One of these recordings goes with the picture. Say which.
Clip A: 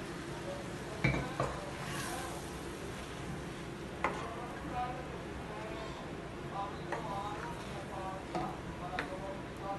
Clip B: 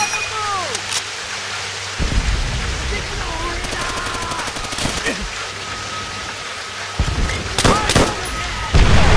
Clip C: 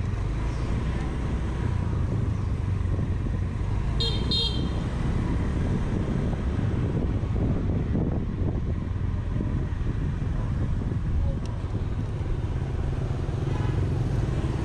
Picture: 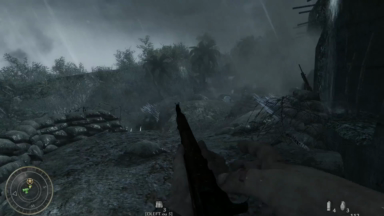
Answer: B